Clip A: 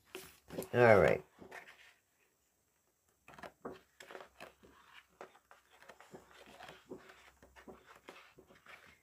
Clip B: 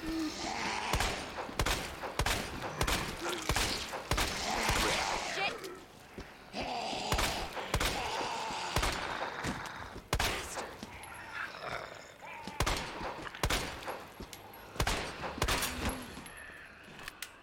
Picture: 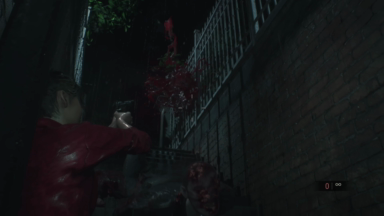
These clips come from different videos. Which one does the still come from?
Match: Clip B